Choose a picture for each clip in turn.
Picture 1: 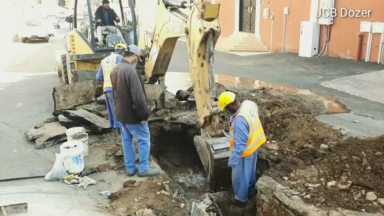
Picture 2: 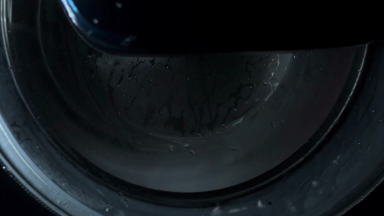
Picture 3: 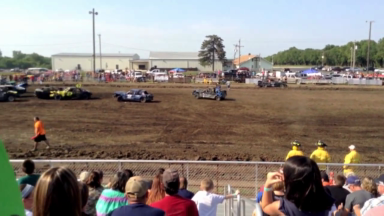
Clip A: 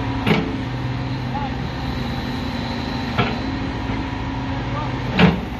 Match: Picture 1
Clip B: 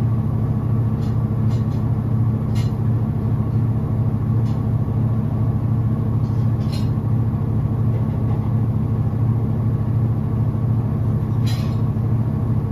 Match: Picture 2